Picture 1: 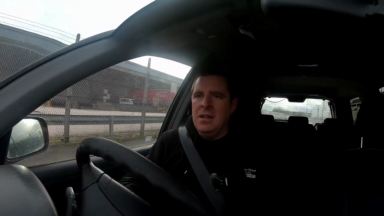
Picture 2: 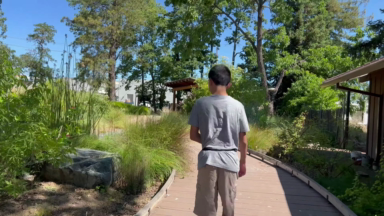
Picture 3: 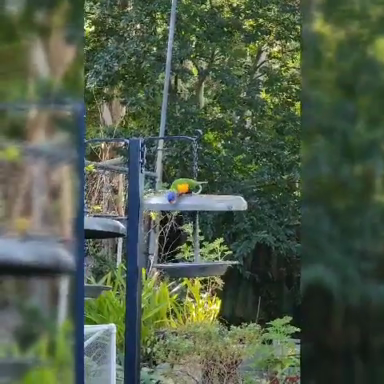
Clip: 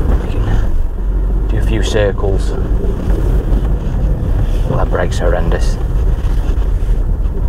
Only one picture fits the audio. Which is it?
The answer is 1